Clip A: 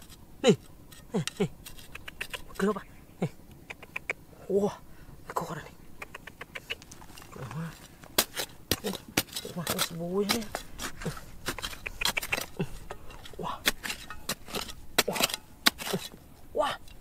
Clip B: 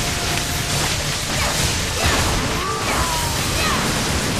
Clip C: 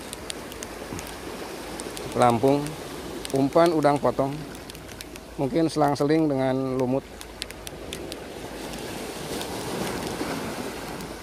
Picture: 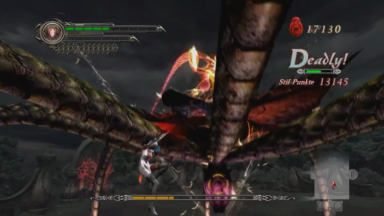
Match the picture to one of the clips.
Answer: B